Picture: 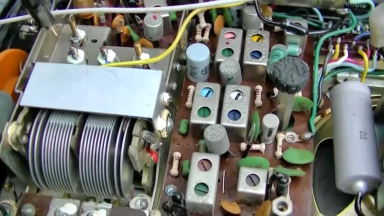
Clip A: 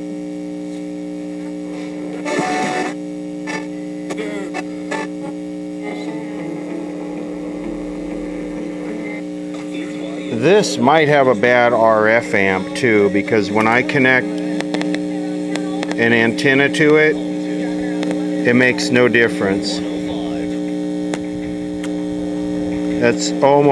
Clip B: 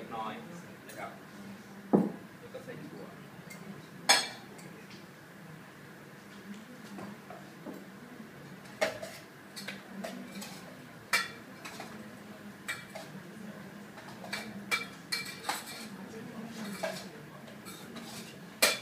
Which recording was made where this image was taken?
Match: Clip A